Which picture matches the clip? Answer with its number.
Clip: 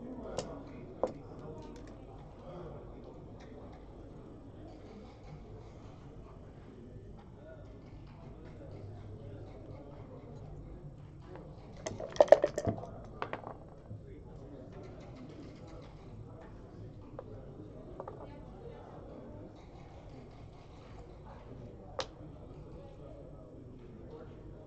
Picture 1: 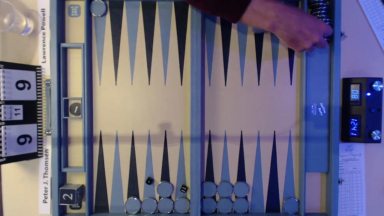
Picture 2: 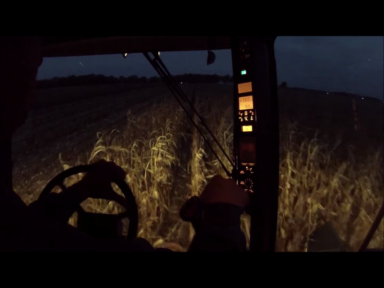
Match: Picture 1